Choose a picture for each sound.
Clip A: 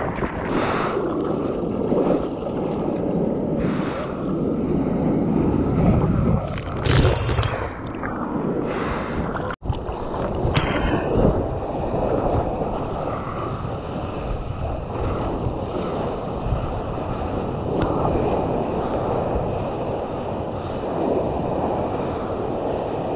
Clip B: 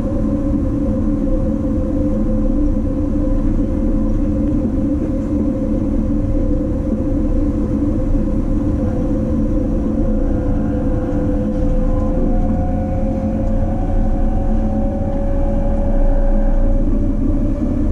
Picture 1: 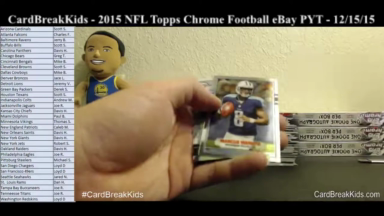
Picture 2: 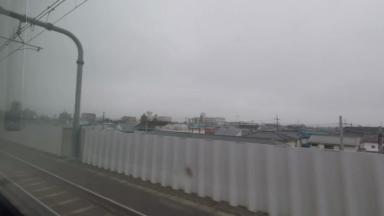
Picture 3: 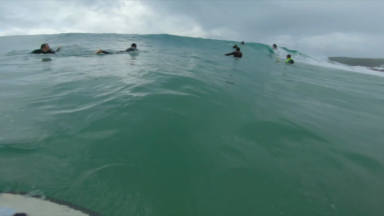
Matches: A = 3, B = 2